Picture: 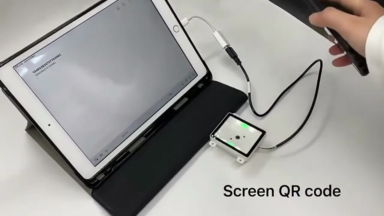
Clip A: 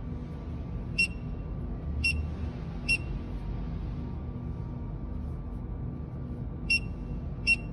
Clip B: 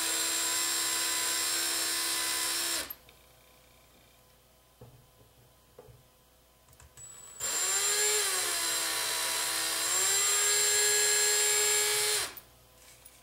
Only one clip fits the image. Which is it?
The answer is A